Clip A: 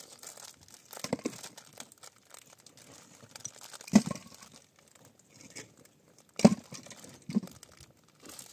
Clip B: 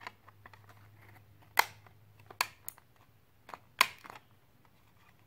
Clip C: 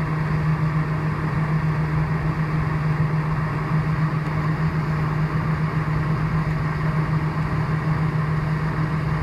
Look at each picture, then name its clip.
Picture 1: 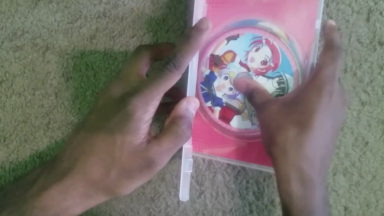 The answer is B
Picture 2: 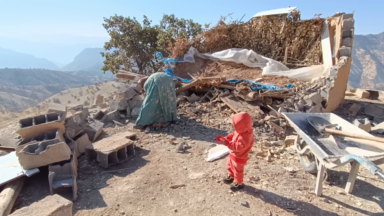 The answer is A